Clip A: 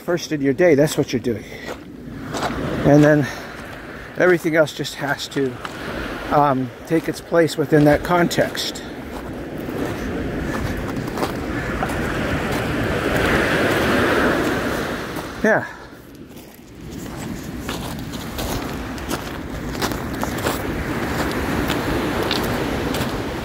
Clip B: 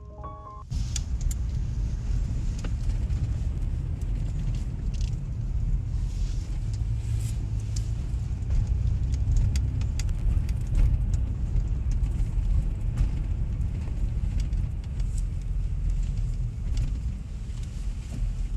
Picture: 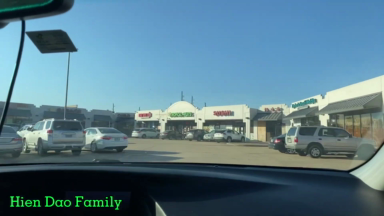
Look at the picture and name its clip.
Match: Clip B